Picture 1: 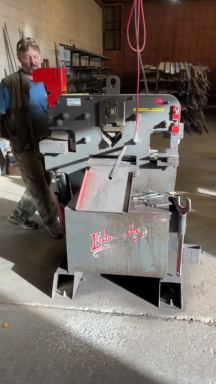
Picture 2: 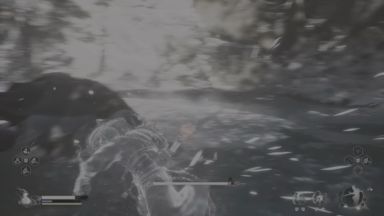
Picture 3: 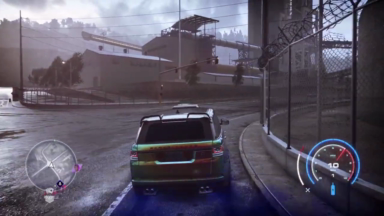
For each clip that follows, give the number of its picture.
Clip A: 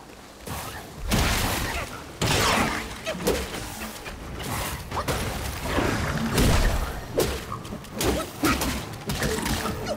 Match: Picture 2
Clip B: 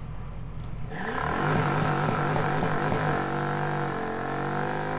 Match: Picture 3